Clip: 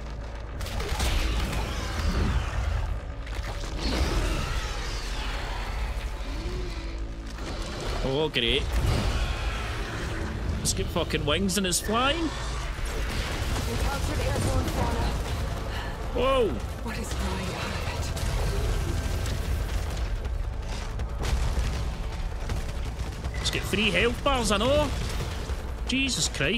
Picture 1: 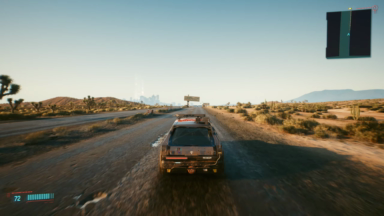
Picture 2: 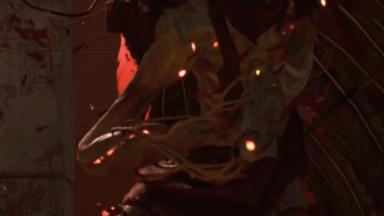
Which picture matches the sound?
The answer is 2